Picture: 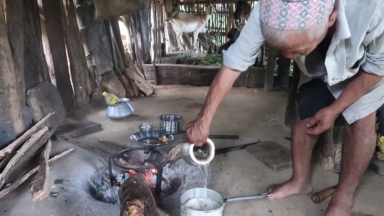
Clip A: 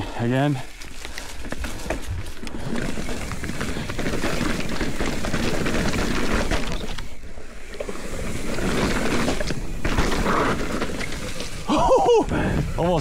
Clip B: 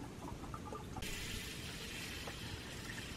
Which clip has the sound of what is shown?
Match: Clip B